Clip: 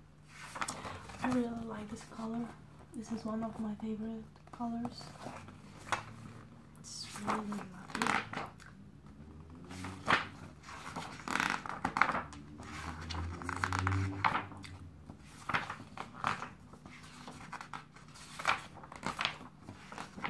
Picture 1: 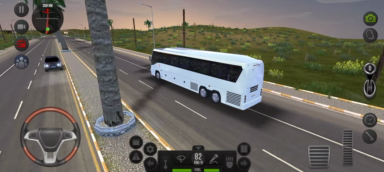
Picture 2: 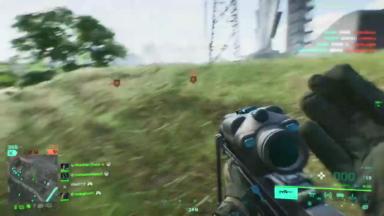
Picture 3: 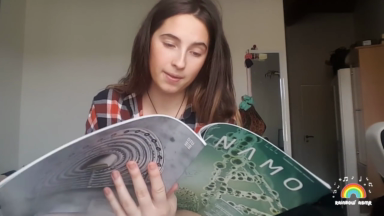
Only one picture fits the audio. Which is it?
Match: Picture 3